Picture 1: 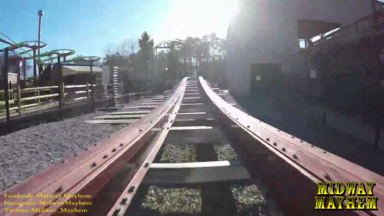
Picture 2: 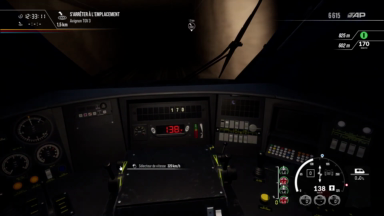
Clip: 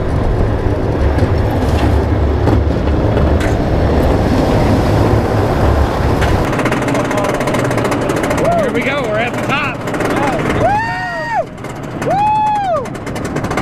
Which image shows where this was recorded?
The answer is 1